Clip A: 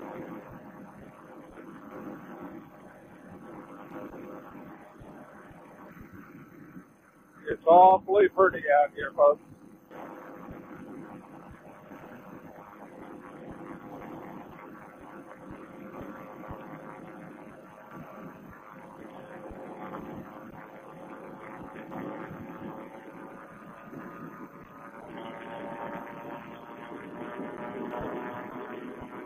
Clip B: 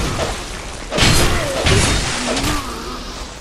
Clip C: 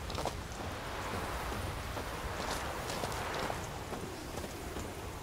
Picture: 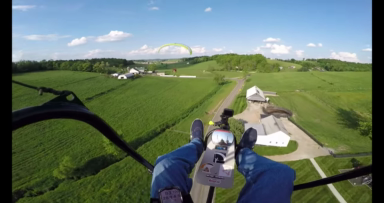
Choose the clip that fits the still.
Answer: A